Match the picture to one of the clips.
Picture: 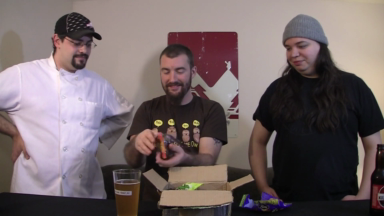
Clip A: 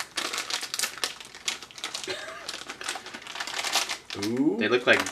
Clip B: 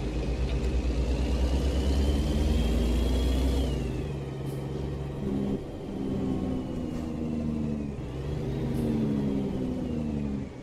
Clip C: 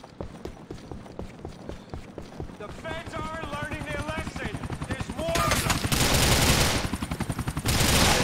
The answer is A